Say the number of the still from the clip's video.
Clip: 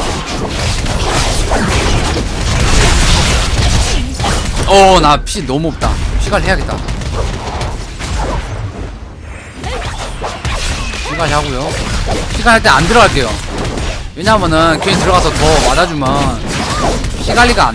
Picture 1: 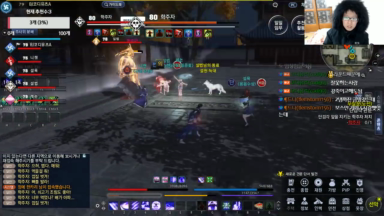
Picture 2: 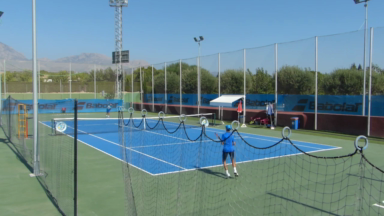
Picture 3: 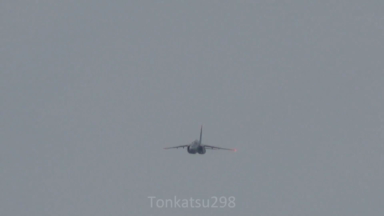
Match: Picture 1